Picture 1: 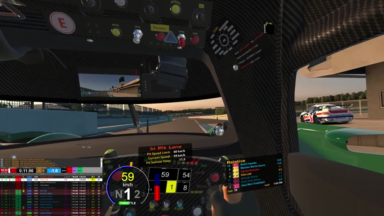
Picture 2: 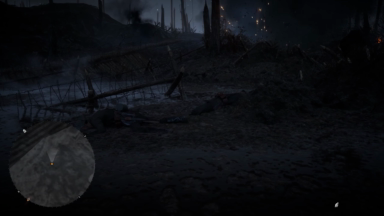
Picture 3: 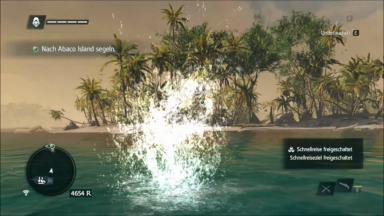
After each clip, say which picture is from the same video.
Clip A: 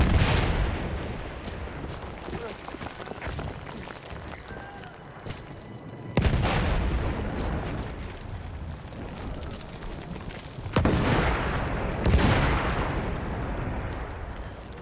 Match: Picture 2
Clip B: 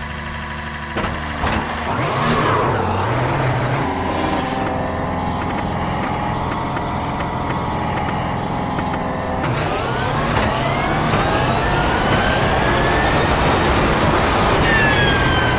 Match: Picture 1